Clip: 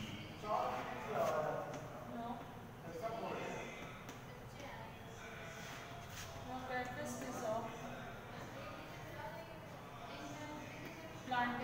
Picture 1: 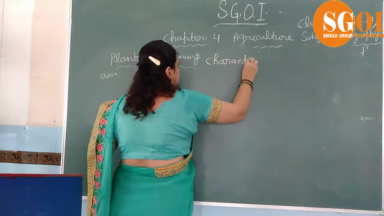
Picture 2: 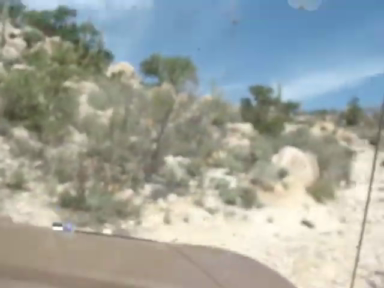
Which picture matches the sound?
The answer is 1